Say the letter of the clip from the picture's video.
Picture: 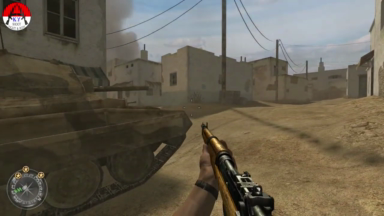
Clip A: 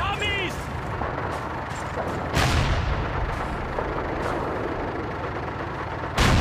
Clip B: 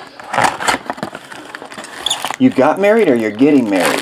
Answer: A